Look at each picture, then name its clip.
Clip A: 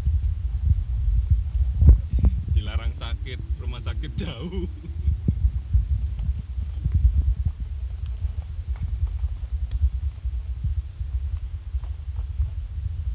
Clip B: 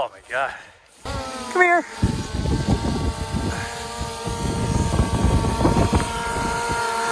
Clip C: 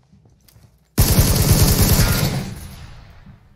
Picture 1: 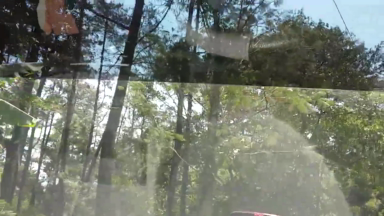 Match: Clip A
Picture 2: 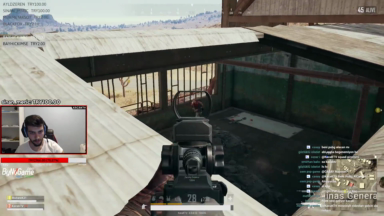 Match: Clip C